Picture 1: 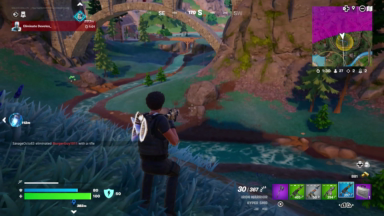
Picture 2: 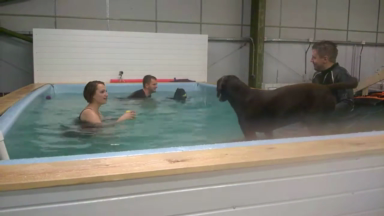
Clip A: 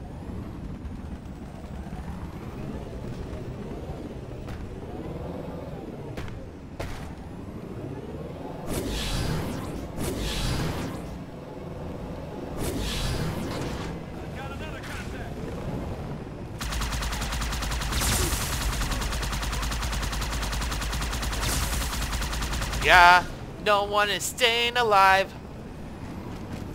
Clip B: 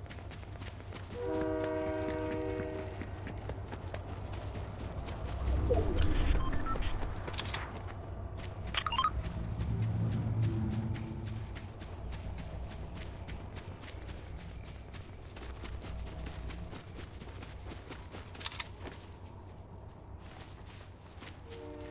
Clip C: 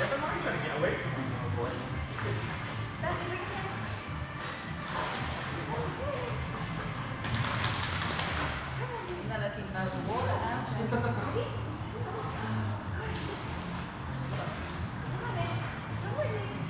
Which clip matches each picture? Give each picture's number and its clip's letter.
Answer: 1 B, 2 C